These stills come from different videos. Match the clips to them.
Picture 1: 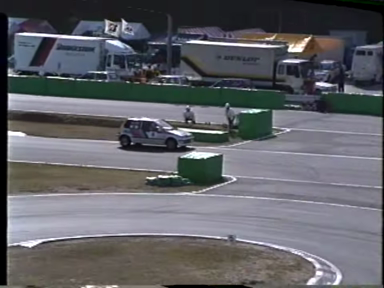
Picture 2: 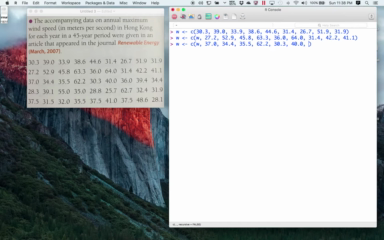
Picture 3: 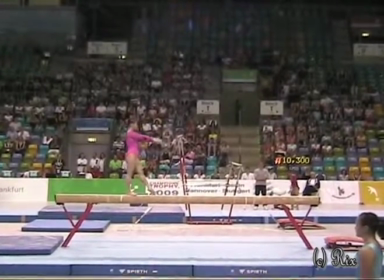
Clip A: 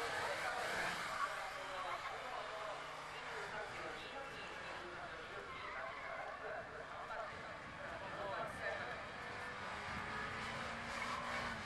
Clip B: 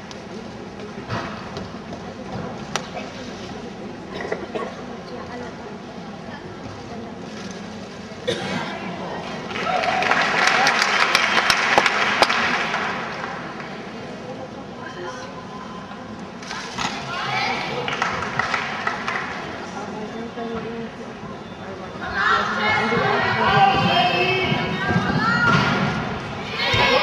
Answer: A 1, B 3